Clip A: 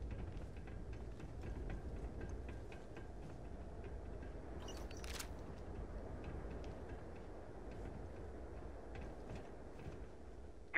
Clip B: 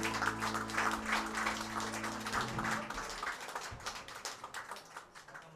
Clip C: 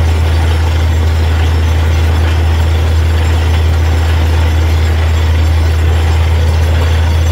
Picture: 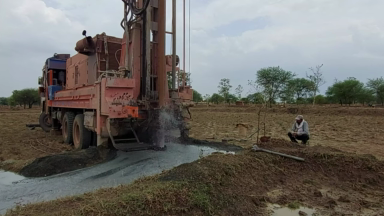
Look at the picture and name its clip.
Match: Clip C